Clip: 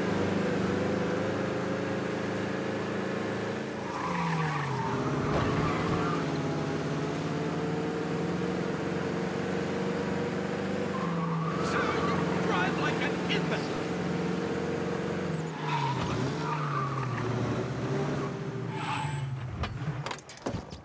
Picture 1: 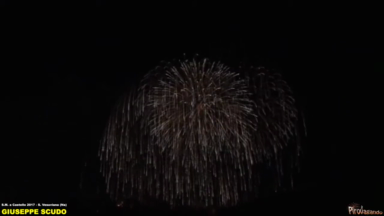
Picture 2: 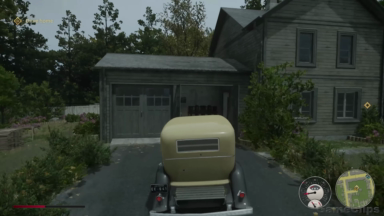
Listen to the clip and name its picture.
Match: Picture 2